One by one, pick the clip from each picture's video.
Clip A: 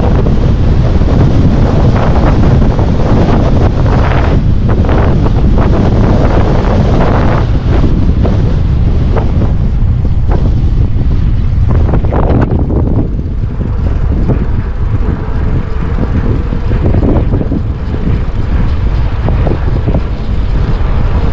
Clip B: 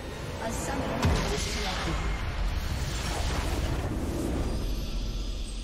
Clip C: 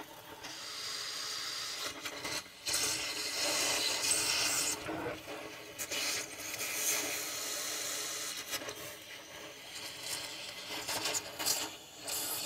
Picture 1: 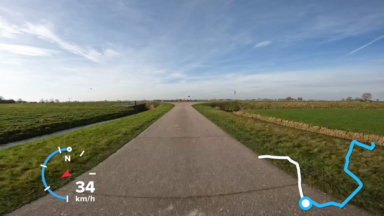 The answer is A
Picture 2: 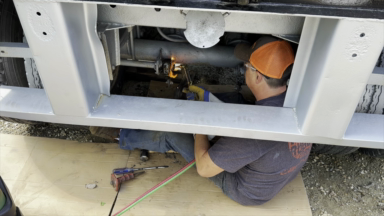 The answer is C